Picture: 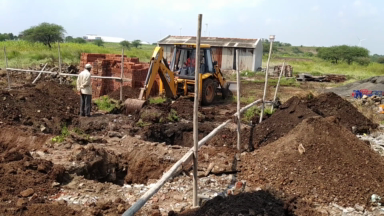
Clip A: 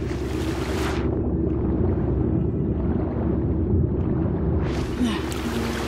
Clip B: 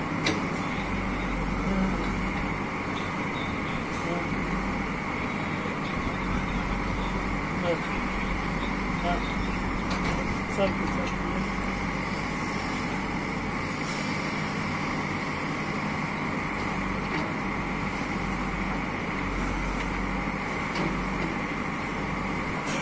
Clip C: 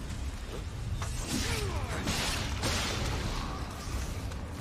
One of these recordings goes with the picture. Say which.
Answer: B